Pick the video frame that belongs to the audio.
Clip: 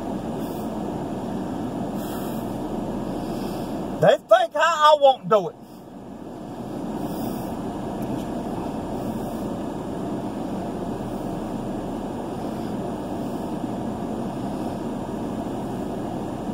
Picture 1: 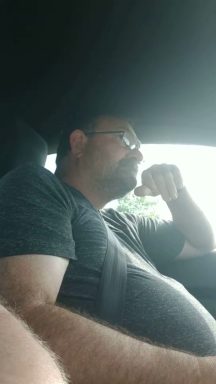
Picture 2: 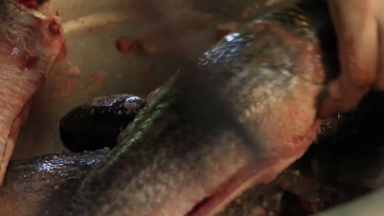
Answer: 1